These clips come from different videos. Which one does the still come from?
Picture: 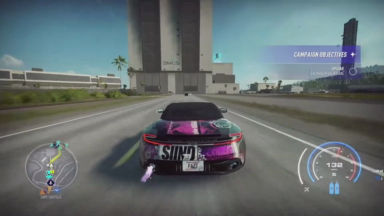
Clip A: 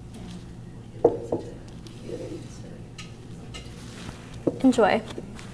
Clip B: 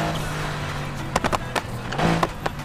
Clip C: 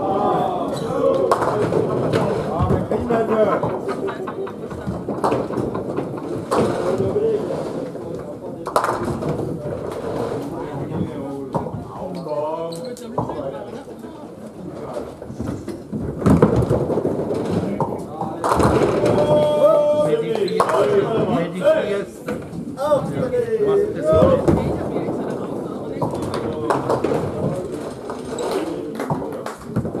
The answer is B